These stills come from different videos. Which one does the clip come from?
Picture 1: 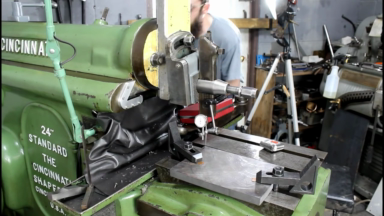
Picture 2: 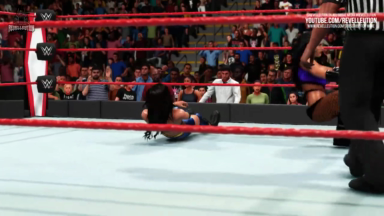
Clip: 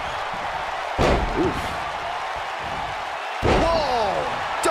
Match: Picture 2